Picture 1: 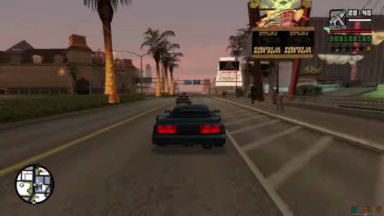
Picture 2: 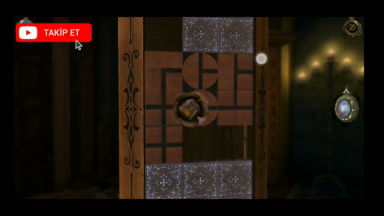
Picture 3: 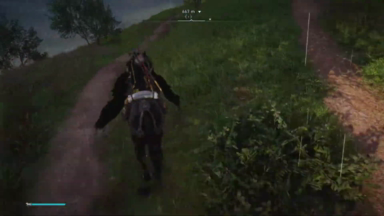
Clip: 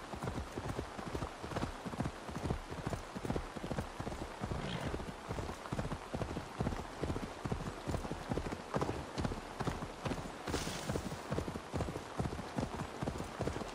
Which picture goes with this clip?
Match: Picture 3